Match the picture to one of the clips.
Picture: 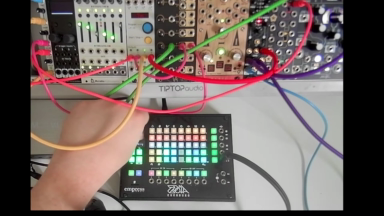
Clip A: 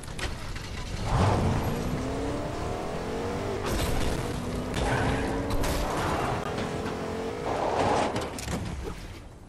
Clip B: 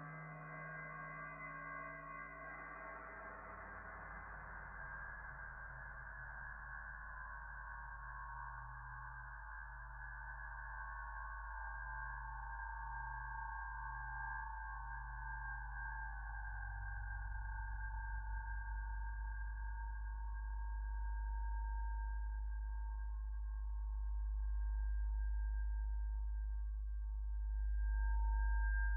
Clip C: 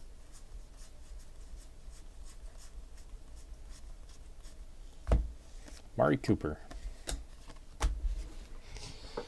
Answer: B